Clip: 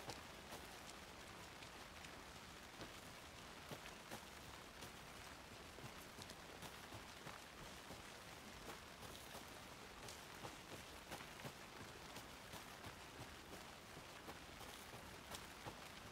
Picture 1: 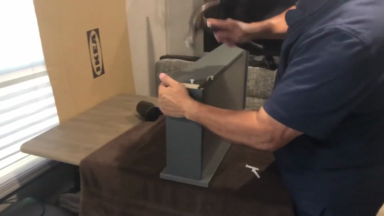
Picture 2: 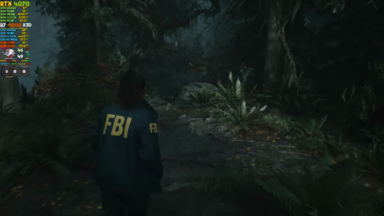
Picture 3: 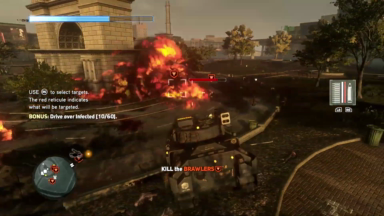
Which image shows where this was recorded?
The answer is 2